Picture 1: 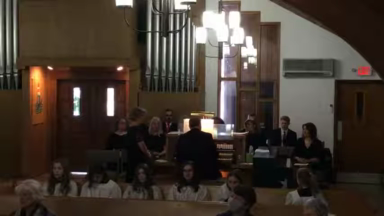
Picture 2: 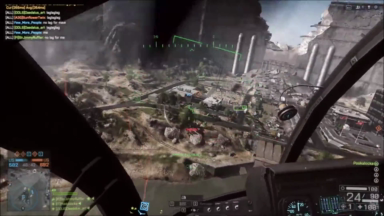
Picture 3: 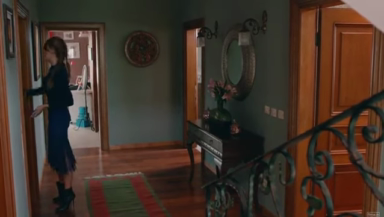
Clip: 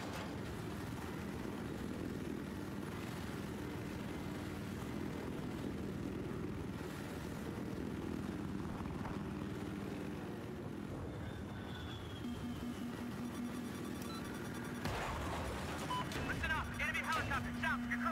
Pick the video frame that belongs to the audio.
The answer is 2